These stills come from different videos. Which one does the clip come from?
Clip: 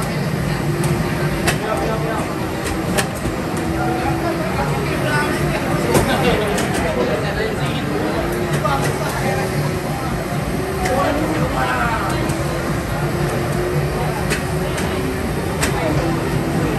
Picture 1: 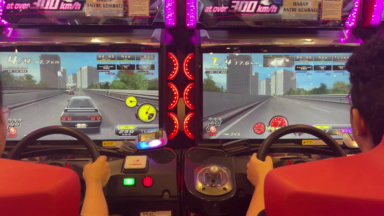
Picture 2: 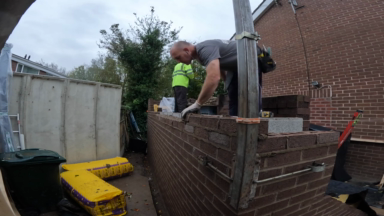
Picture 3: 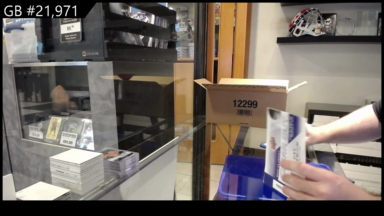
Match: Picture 1